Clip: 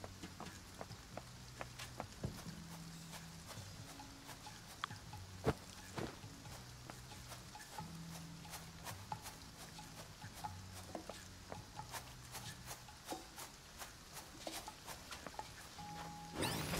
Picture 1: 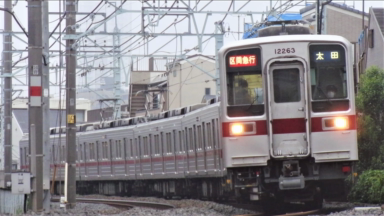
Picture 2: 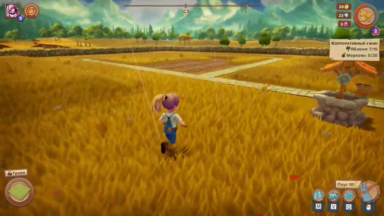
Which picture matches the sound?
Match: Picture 2